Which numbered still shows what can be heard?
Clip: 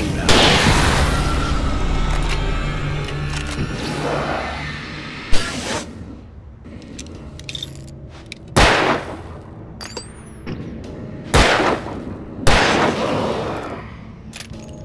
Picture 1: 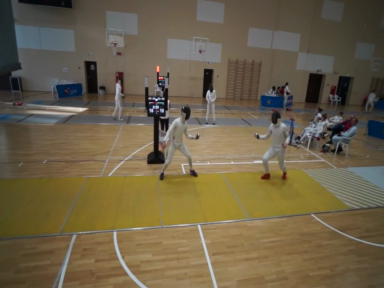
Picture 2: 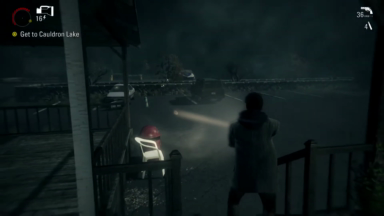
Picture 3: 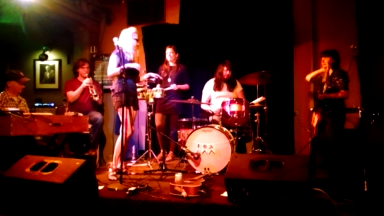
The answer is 2